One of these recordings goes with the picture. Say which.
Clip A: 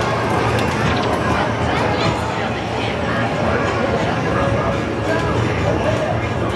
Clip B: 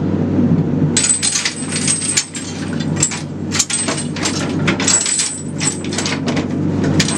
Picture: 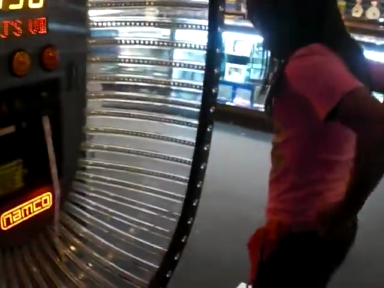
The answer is A